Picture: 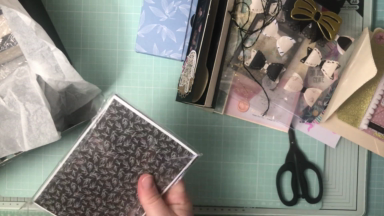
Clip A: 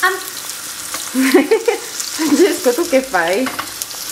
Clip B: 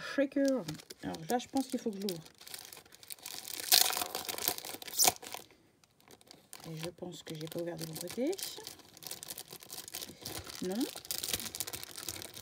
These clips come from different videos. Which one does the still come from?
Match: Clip B